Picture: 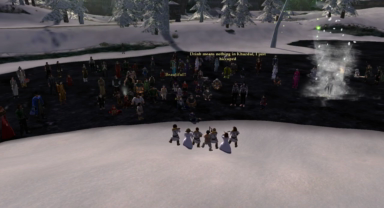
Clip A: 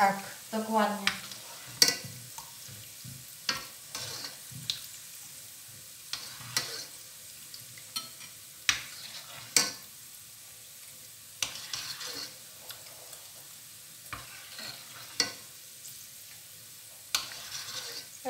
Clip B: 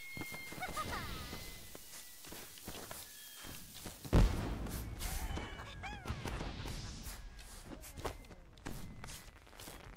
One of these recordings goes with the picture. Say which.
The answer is B